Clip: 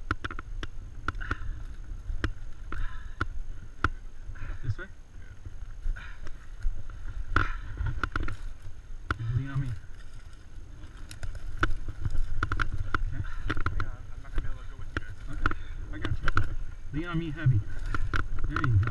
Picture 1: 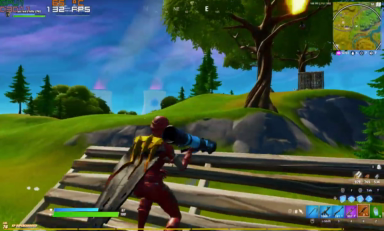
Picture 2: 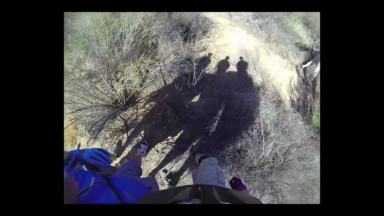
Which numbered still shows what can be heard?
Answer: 2